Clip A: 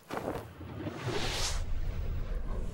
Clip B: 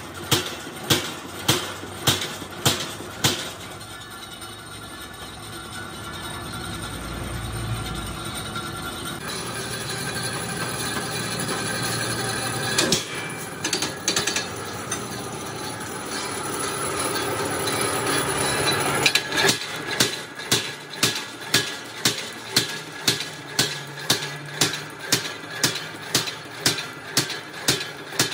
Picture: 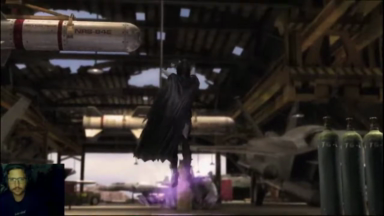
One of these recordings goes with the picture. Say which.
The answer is A